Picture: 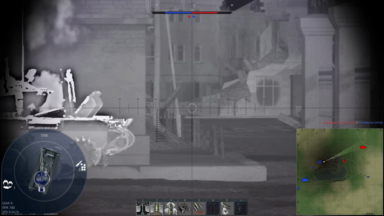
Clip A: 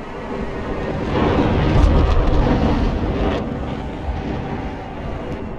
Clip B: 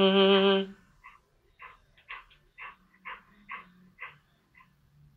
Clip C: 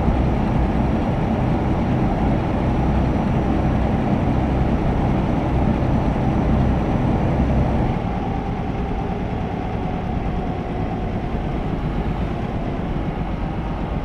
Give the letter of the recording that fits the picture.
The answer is A